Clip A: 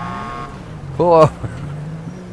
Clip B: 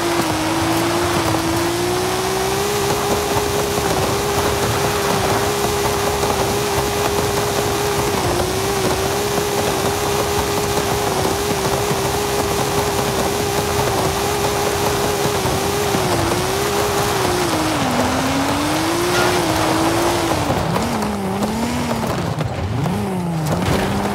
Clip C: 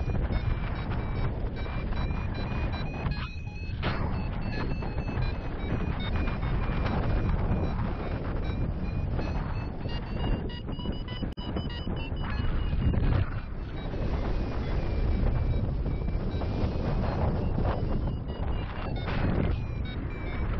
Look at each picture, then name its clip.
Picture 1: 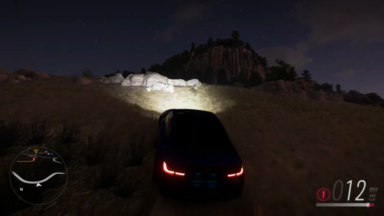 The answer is B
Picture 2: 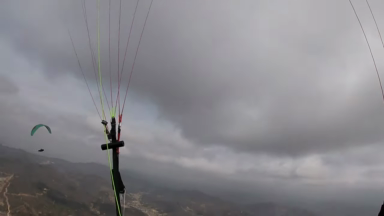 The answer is C